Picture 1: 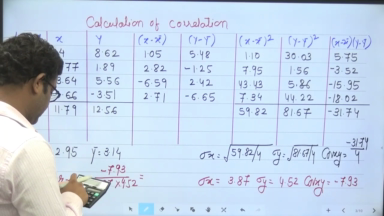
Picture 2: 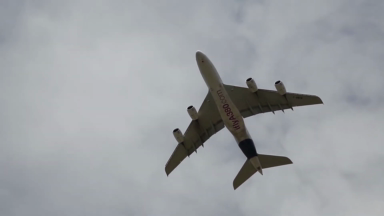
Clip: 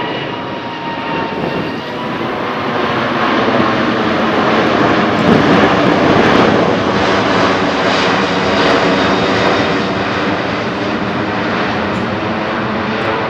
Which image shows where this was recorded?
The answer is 2